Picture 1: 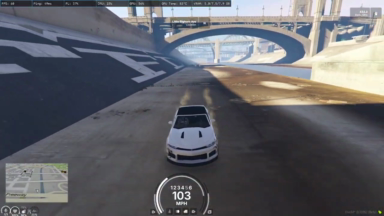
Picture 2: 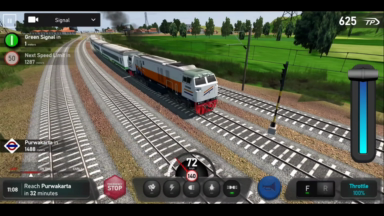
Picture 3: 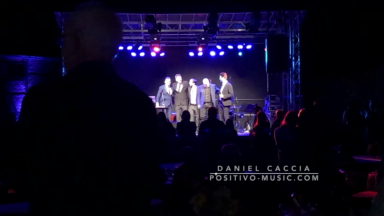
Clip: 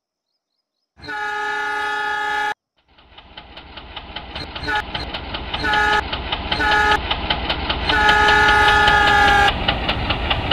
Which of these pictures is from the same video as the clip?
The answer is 2